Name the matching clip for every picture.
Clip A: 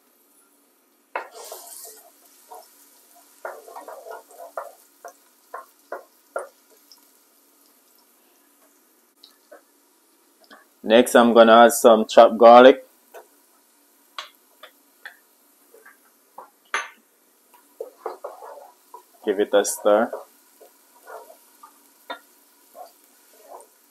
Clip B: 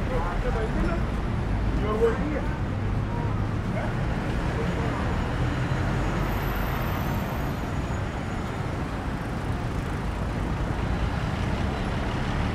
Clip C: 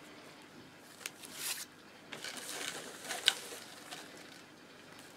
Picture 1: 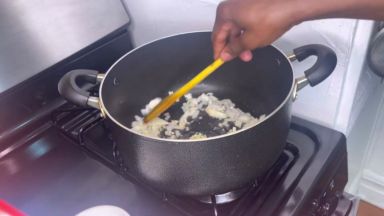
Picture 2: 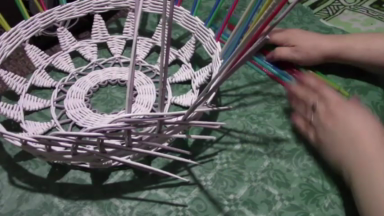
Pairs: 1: A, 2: C